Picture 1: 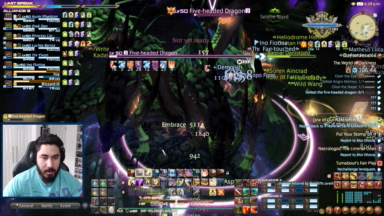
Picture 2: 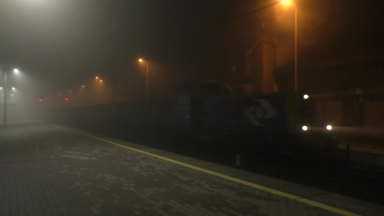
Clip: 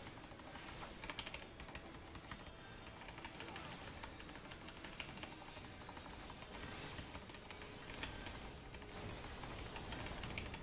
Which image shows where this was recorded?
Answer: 1